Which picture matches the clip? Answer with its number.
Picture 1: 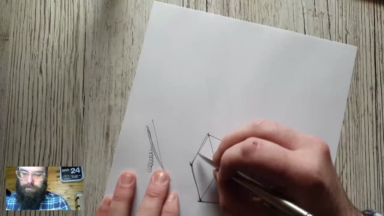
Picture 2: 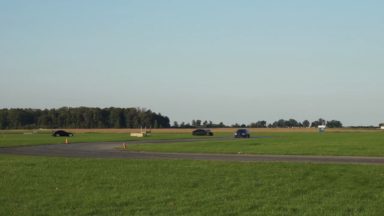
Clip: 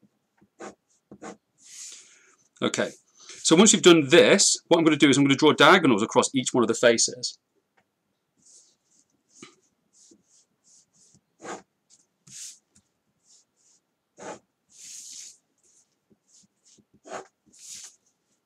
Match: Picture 1